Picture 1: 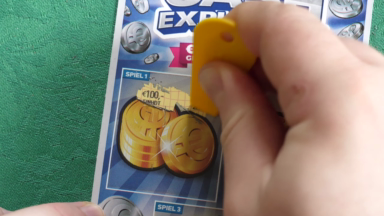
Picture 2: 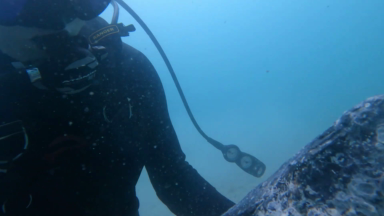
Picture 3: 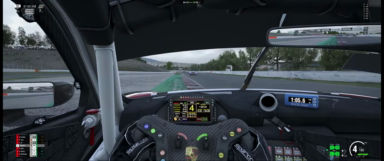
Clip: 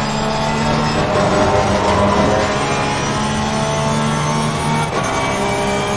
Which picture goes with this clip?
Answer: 3